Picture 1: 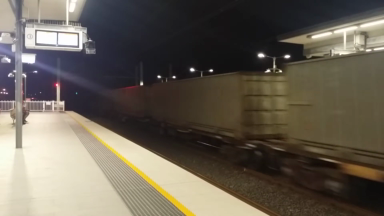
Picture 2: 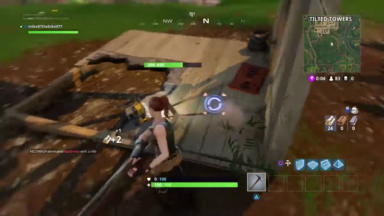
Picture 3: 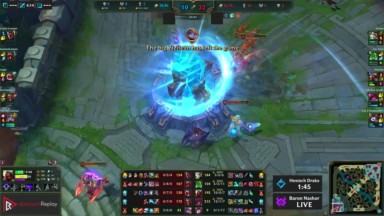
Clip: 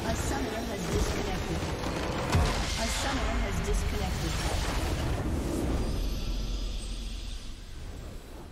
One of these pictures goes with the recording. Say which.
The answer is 3